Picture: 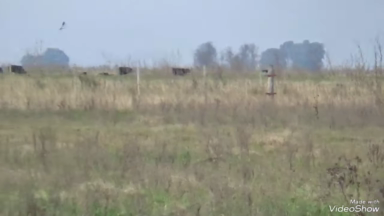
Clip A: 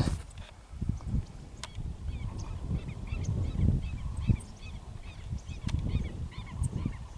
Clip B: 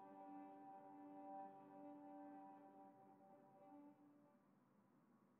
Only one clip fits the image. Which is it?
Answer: A